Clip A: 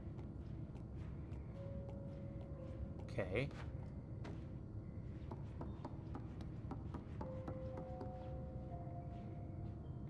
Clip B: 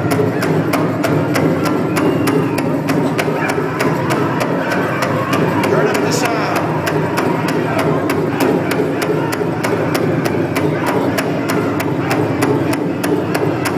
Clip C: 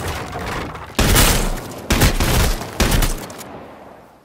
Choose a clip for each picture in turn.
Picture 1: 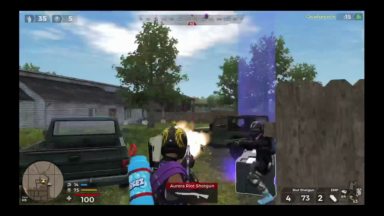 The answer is C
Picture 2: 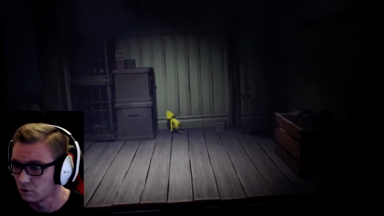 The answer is A